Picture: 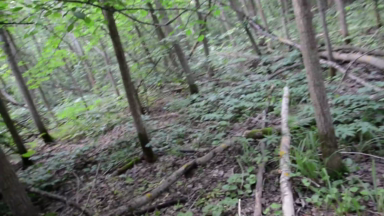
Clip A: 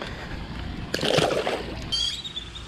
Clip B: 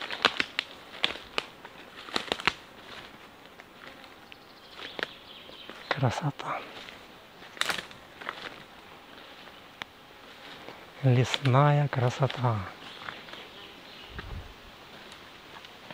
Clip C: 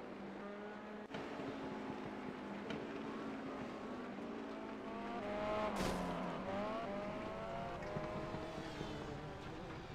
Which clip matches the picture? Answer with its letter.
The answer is B